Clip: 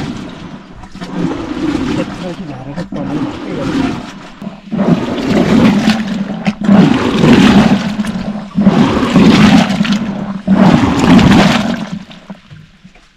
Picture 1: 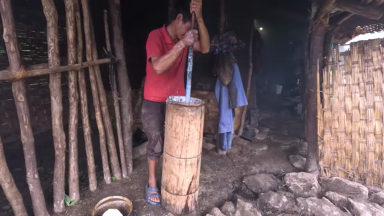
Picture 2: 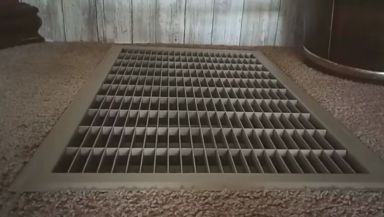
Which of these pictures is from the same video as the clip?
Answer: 1